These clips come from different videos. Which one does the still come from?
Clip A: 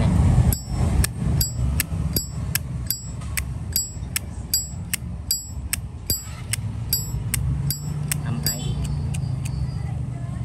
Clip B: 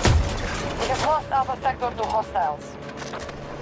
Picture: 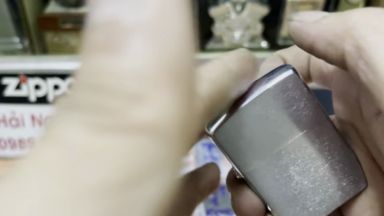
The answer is A